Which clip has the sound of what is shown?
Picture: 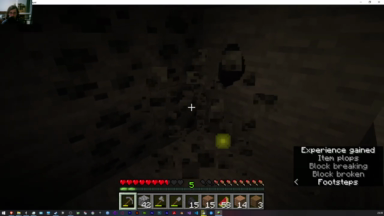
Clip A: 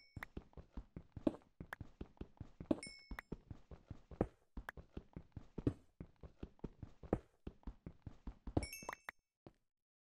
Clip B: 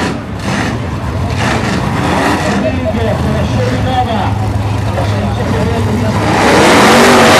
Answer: A